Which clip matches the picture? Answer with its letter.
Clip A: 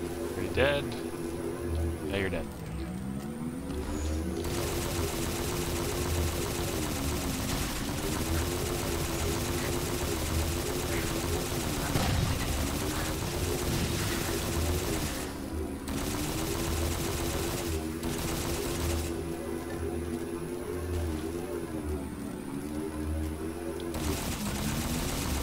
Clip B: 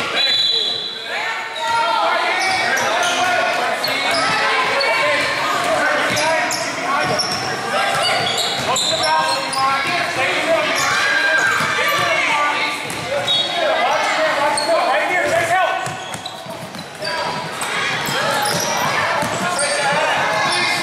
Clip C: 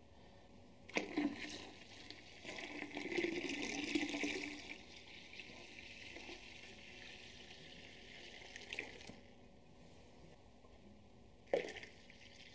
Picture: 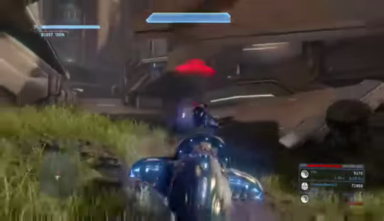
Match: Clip A